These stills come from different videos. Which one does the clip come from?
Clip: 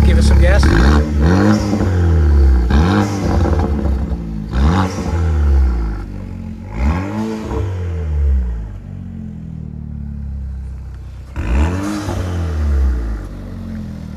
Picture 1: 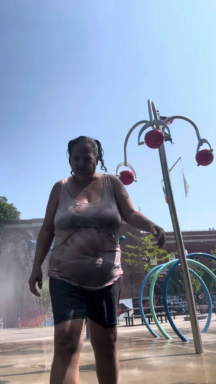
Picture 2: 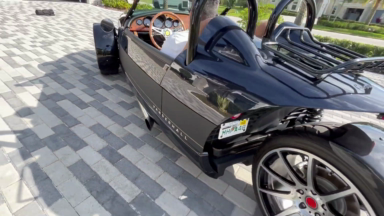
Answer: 2